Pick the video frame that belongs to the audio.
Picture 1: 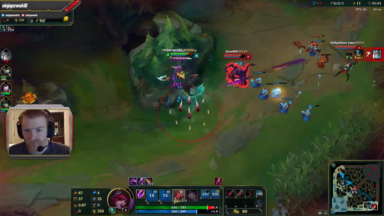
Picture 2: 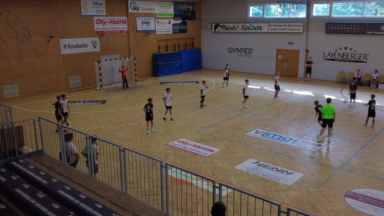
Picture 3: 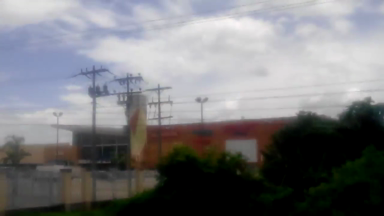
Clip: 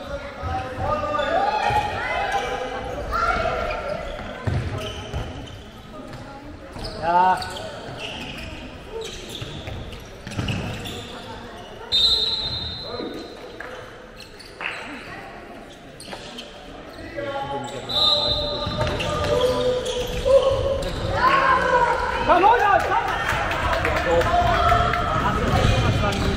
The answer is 2